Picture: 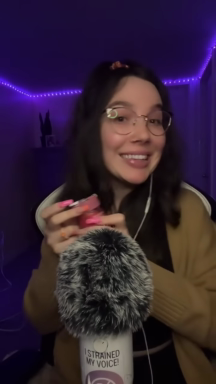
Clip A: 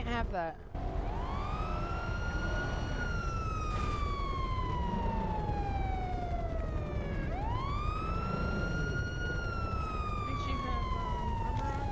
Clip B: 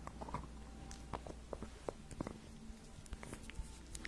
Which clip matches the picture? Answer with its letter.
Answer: B